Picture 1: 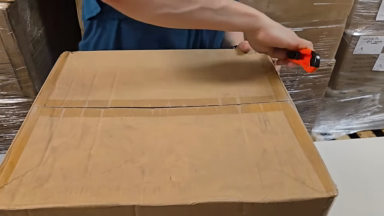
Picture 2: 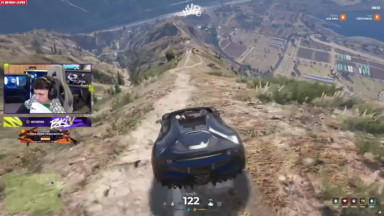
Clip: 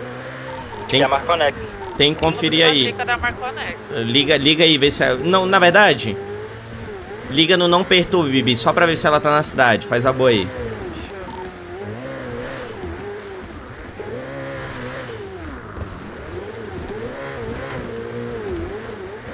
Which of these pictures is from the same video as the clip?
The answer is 2